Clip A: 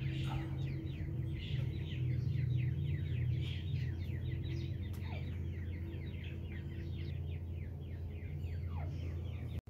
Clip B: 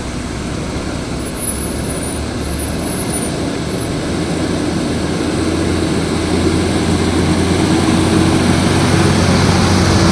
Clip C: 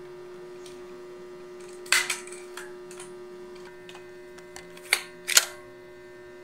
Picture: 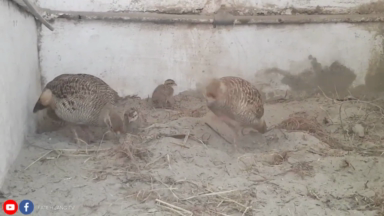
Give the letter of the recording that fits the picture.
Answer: A